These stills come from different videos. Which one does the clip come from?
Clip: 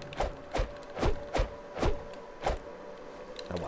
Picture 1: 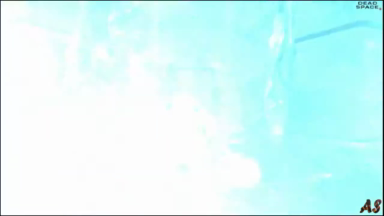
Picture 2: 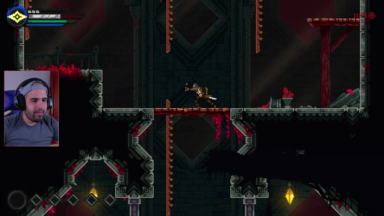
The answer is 2